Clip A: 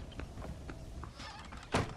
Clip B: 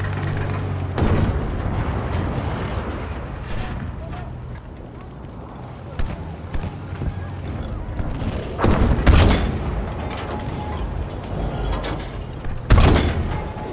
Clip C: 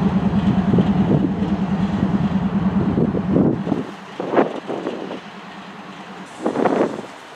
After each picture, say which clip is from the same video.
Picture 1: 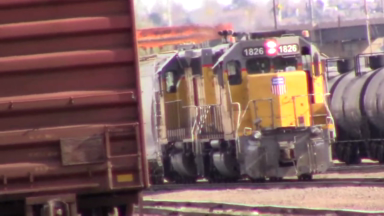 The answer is C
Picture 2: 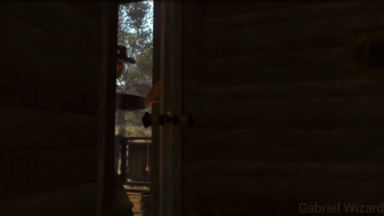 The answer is A